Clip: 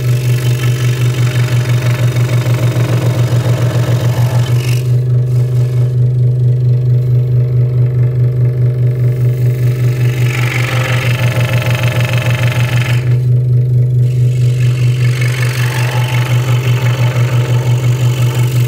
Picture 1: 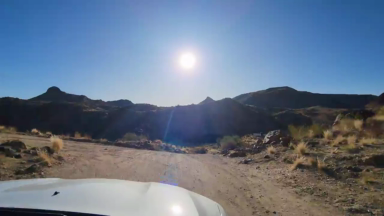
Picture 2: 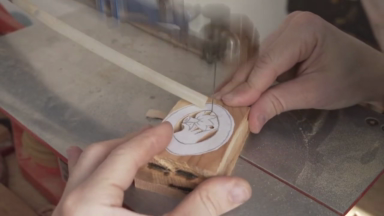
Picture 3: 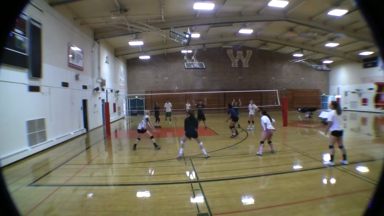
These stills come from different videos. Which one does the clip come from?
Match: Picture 2